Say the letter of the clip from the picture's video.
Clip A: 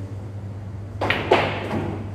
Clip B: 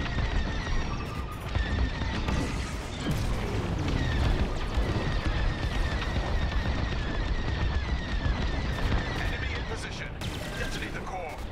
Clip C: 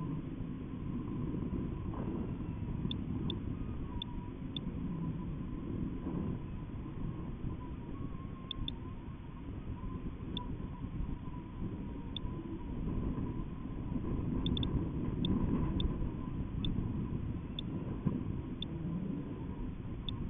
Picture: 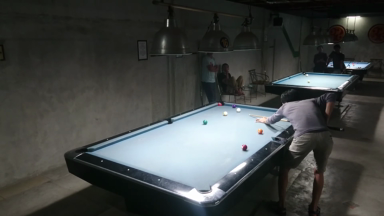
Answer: A